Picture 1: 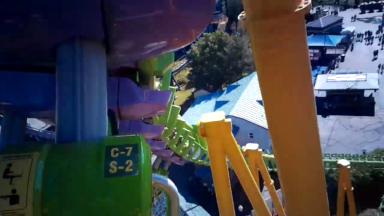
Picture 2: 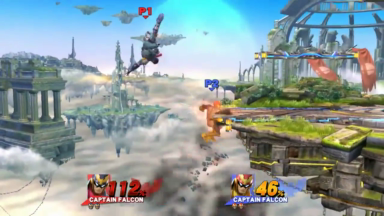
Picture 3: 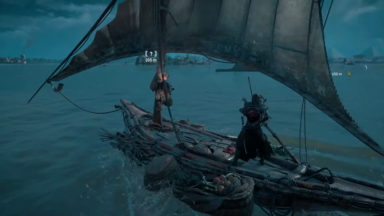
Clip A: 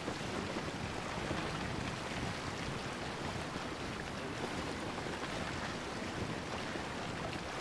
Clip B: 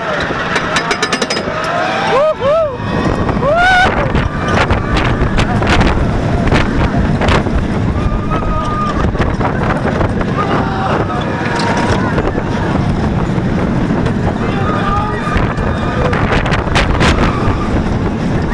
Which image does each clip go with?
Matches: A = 3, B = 1